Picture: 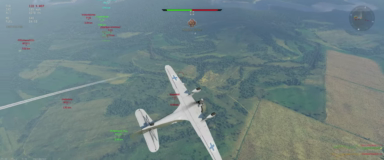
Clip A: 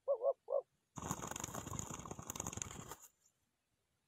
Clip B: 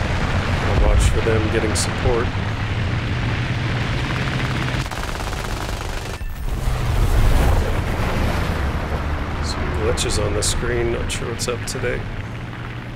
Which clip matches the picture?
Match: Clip B